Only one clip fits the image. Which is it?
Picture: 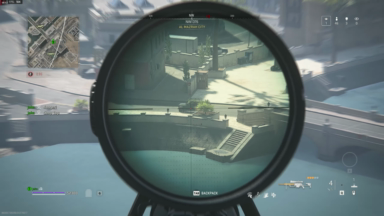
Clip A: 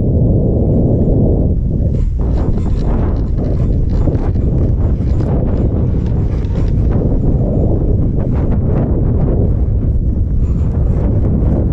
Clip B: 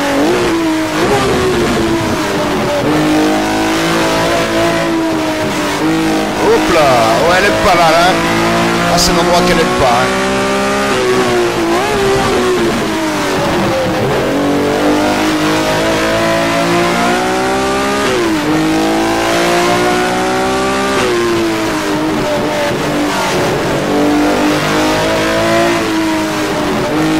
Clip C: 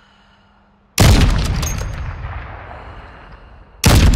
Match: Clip C